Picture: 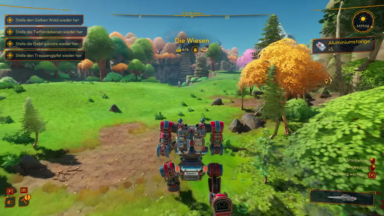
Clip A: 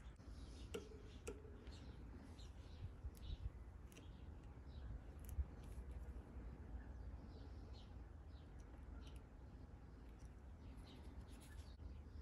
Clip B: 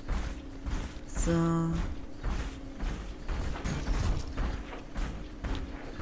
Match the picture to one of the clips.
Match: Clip B